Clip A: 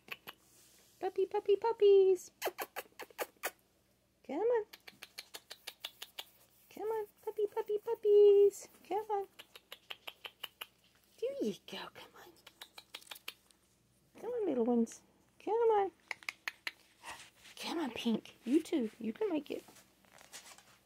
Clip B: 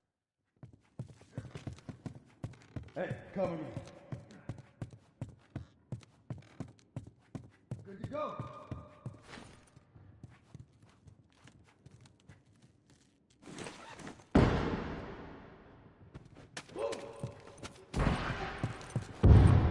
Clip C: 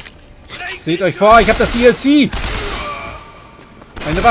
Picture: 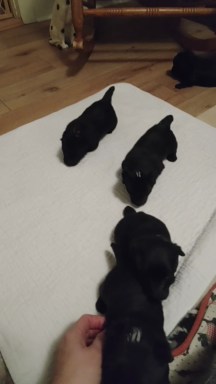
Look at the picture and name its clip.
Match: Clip A